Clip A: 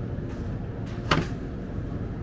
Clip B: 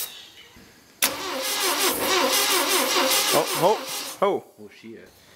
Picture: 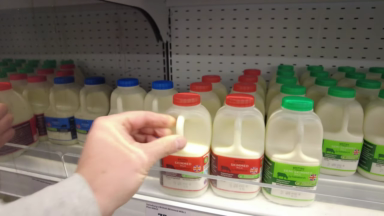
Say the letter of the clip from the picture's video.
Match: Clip A